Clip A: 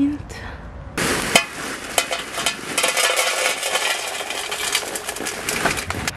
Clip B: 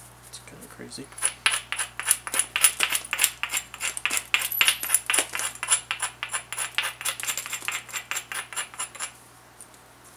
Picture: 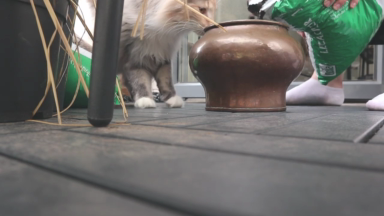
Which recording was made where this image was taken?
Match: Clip A